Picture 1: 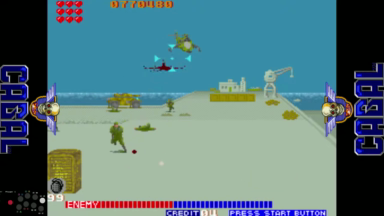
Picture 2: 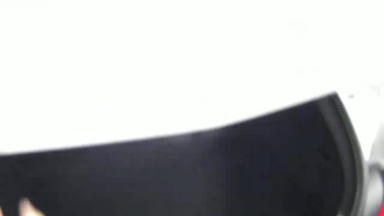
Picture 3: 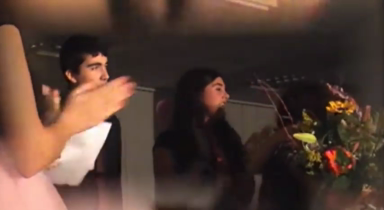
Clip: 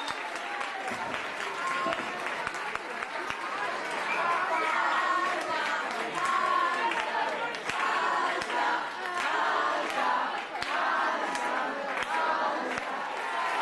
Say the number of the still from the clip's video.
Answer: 3